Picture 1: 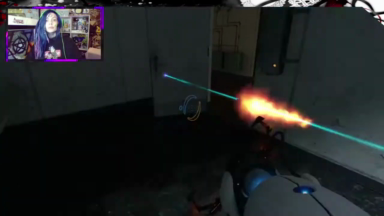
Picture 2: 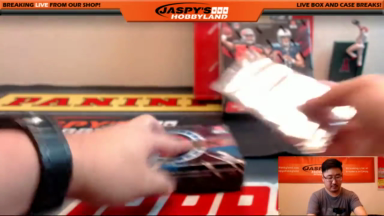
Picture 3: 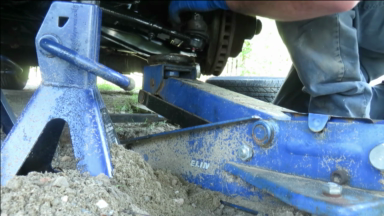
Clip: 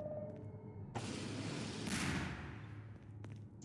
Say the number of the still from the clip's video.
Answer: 1